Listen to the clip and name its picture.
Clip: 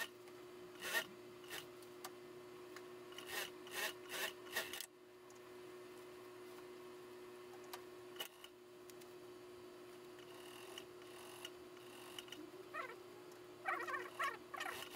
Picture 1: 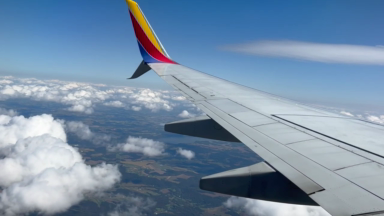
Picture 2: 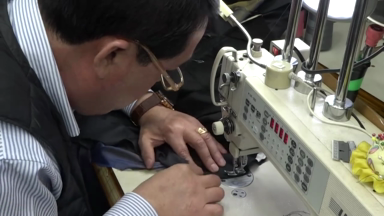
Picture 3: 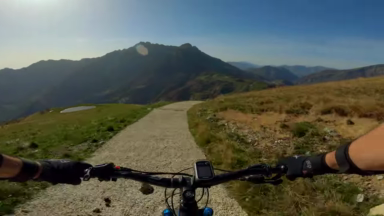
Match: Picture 2